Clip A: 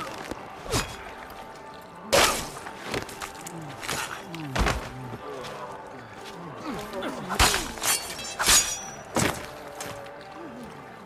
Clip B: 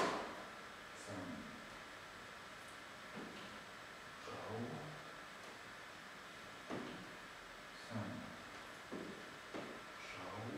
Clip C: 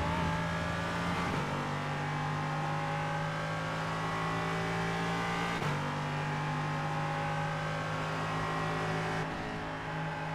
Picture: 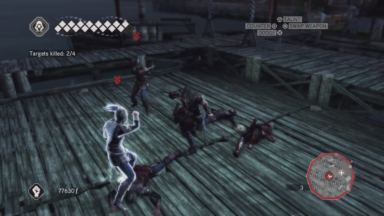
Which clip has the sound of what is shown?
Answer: A